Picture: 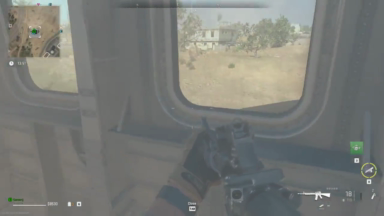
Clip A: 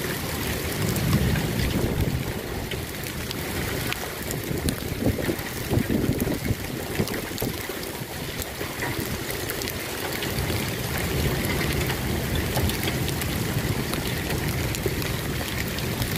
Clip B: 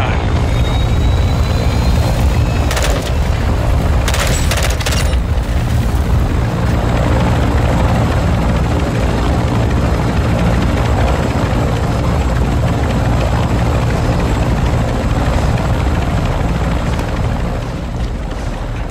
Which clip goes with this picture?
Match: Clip B